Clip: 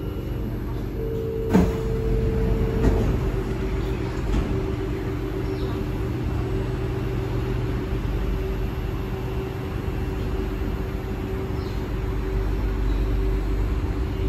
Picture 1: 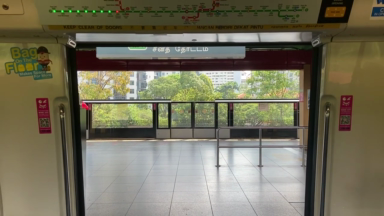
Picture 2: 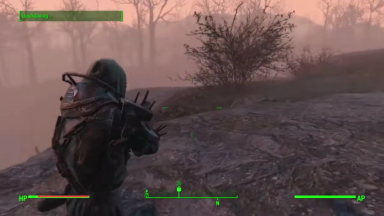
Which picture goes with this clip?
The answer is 1